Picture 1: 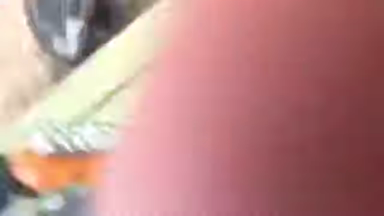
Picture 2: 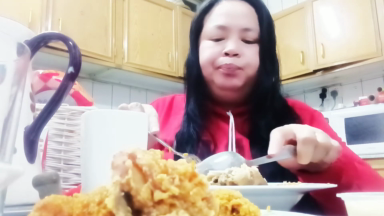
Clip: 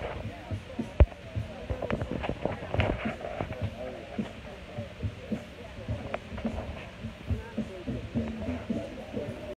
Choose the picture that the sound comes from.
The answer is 1